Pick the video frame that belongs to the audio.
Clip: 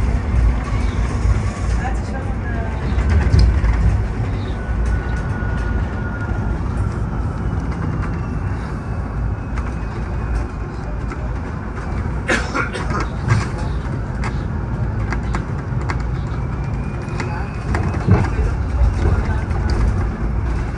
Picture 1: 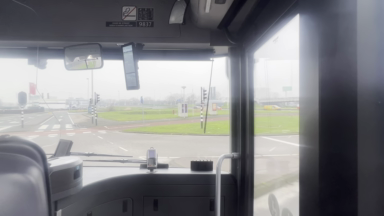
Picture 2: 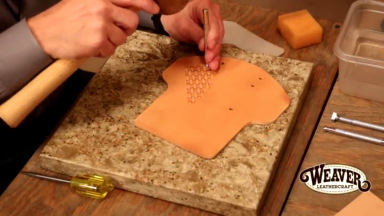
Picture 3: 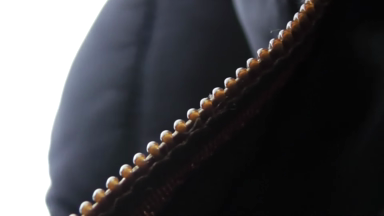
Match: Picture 1